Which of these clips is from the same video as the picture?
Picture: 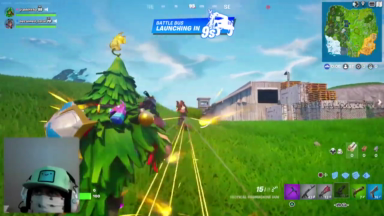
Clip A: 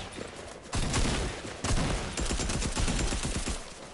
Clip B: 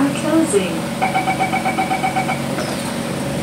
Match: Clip A